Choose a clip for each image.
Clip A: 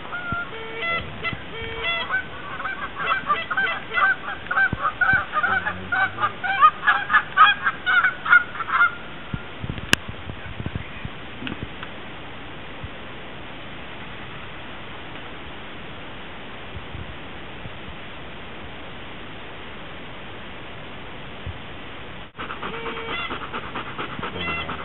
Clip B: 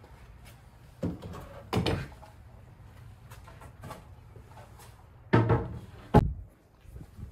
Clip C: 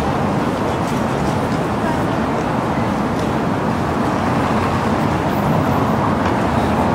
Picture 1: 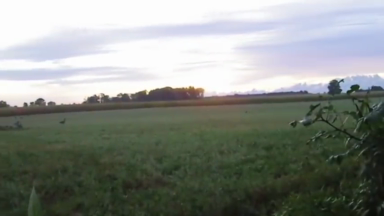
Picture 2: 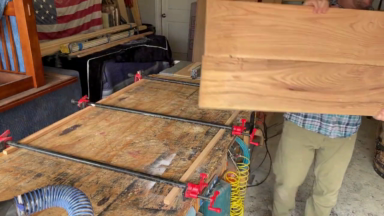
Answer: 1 A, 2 B